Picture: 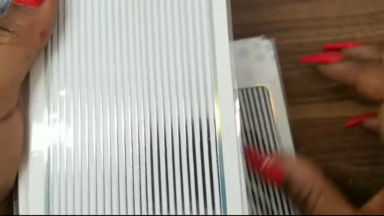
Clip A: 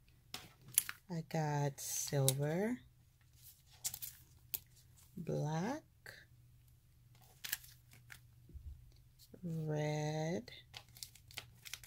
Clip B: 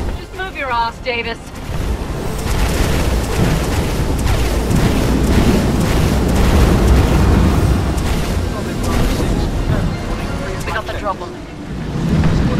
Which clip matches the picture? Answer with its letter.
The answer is A